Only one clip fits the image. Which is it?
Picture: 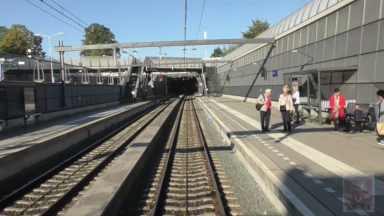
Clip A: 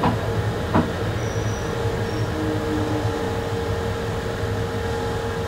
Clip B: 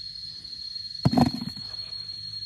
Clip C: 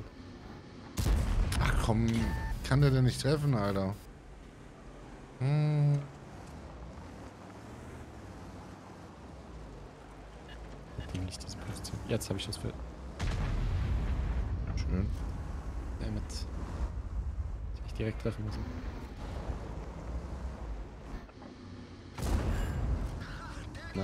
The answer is A